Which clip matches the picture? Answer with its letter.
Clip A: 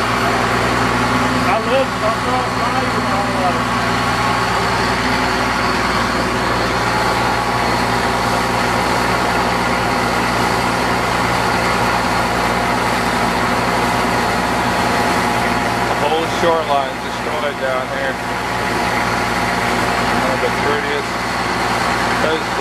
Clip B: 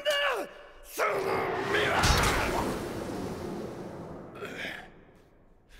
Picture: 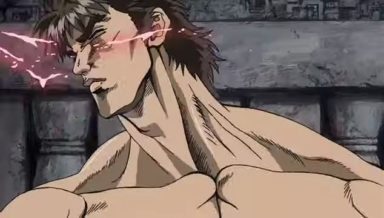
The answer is B